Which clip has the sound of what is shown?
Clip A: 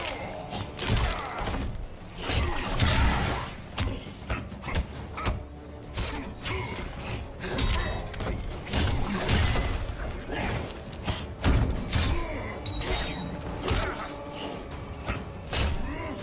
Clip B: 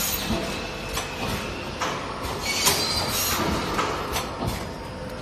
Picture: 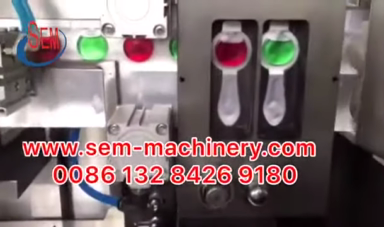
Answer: B